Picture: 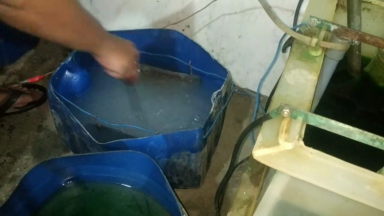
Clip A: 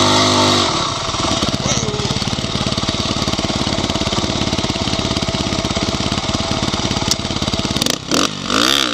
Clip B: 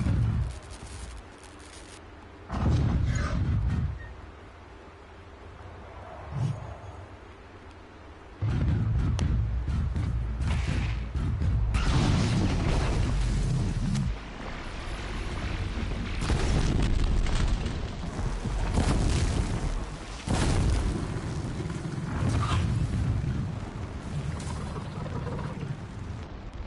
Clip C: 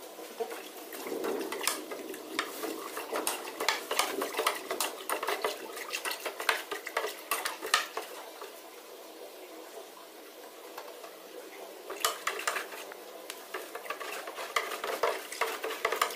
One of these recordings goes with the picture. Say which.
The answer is C